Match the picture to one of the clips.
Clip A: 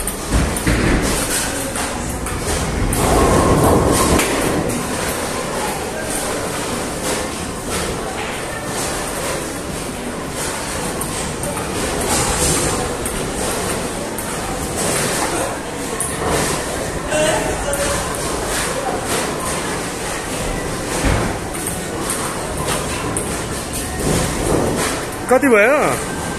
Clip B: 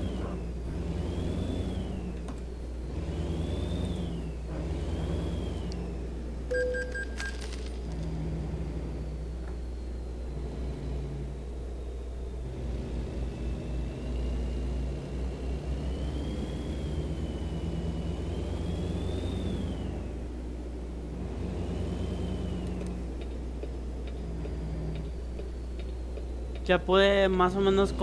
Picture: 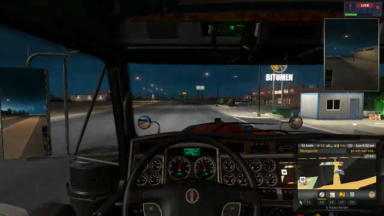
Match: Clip B